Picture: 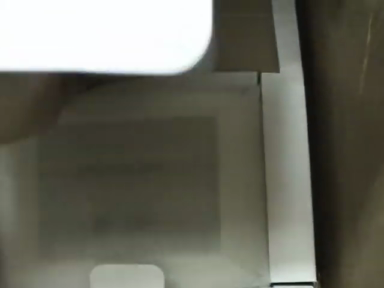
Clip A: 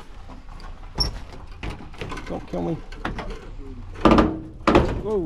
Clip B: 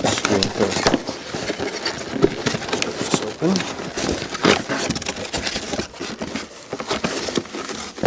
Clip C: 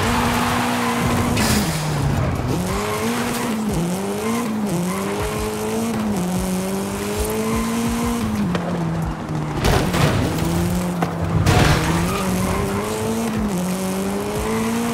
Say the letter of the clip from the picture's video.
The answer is B